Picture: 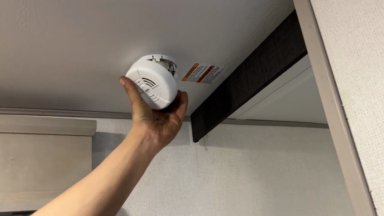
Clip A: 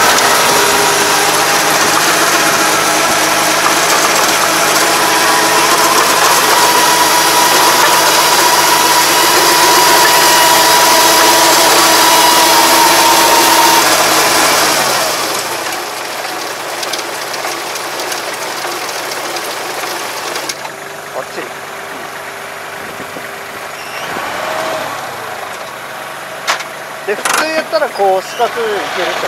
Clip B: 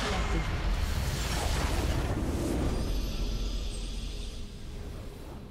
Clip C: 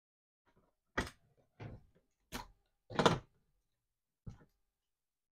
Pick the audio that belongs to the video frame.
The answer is C